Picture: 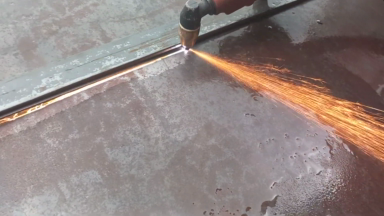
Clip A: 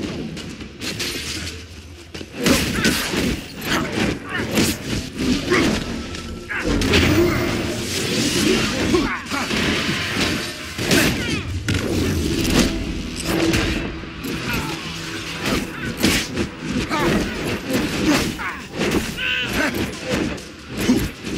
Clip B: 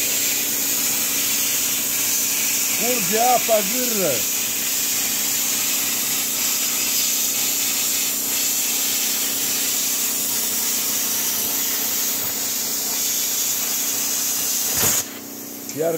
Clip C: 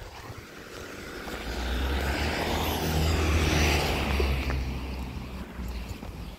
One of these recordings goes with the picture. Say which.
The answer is B